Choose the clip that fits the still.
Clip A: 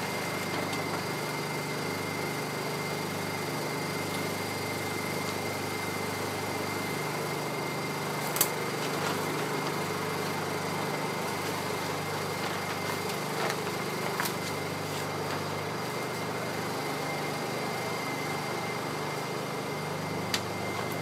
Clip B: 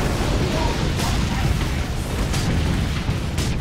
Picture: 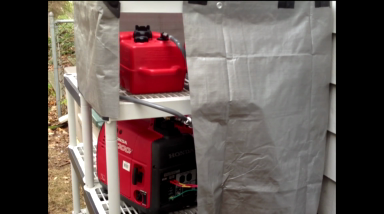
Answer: A